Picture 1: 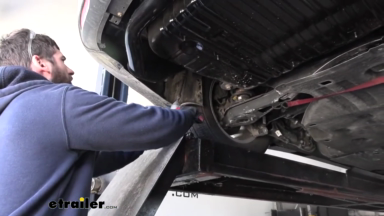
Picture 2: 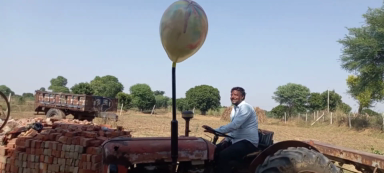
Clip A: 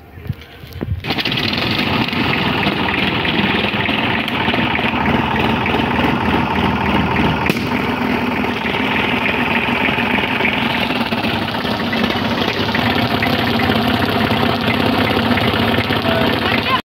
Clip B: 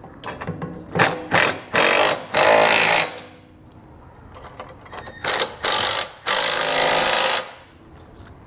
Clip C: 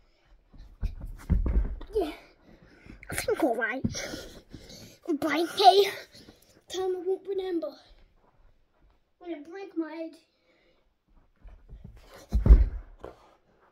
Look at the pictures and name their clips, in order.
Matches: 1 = B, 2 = A